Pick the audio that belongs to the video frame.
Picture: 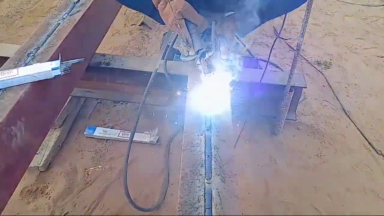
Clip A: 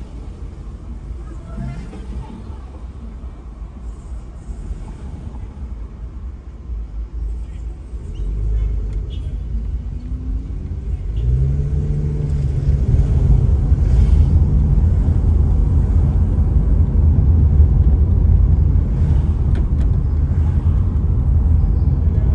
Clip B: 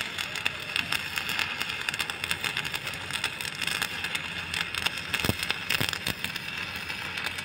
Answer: B